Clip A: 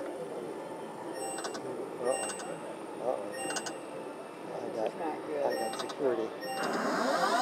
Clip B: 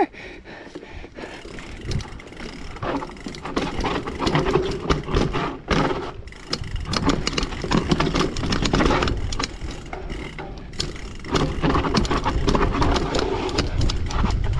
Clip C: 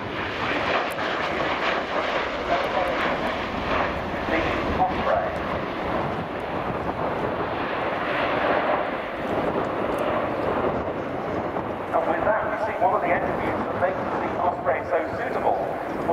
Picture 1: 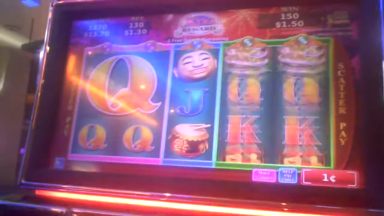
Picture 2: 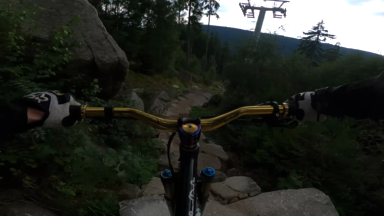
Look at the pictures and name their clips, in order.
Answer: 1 A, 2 B